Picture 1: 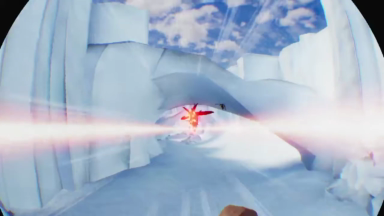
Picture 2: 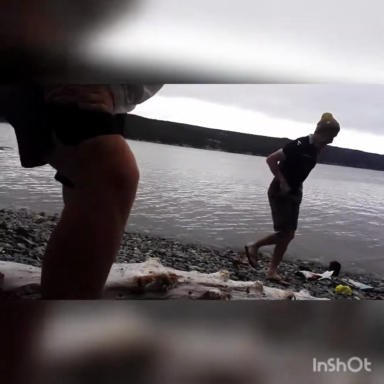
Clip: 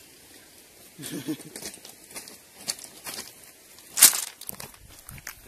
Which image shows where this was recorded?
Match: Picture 2